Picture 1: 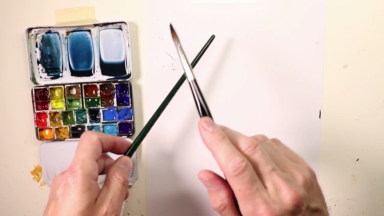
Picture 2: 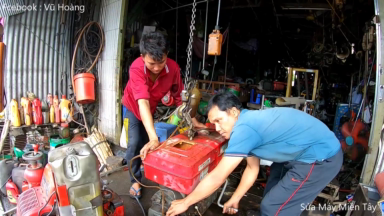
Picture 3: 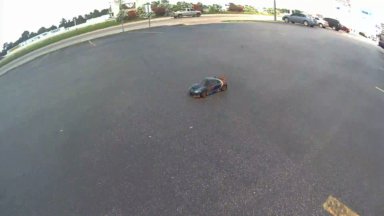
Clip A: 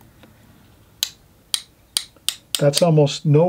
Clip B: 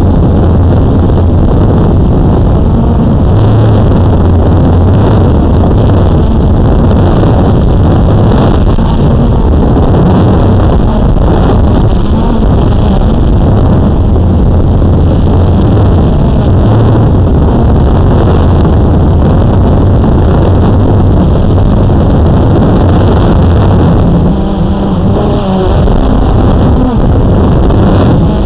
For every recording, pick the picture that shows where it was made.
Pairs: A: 1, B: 3